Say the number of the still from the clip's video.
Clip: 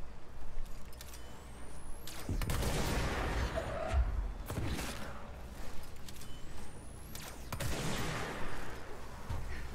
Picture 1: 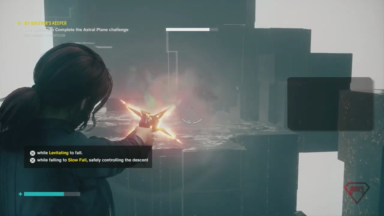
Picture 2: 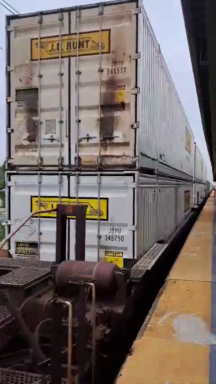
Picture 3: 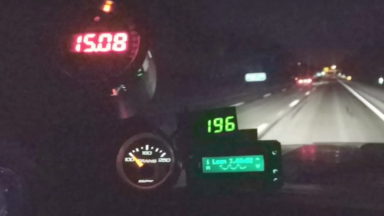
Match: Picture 1